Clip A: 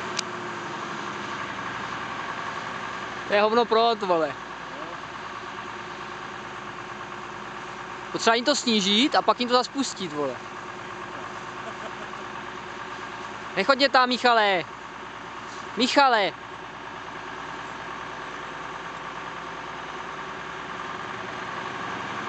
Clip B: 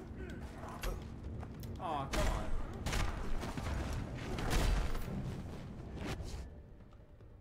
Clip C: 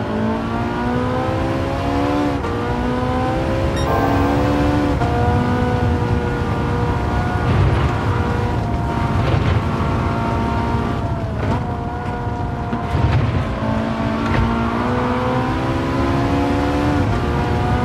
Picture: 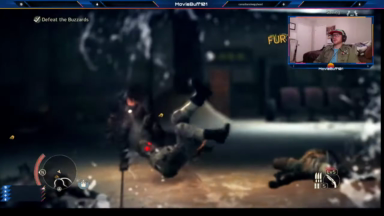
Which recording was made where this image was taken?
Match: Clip B